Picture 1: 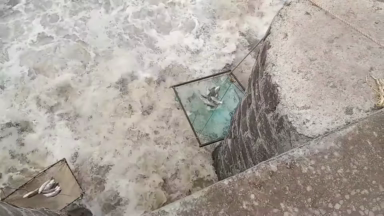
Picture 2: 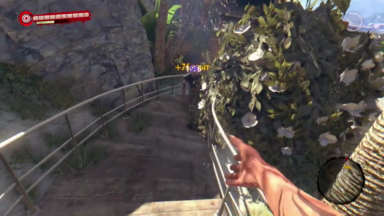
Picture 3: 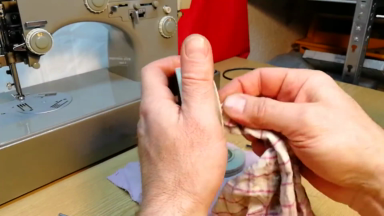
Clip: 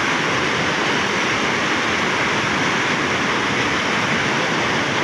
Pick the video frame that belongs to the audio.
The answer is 1